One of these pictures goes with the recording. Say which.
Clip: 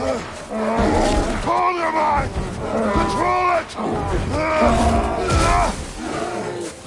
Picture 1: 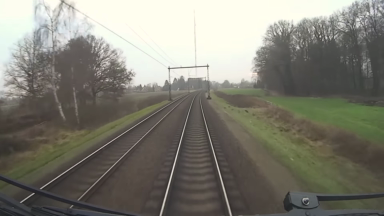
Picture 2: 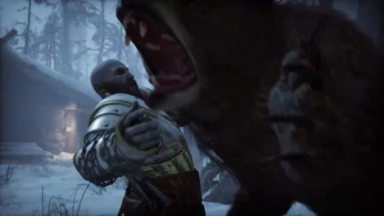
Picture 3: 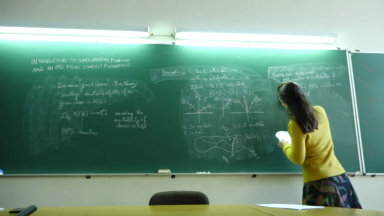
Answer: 2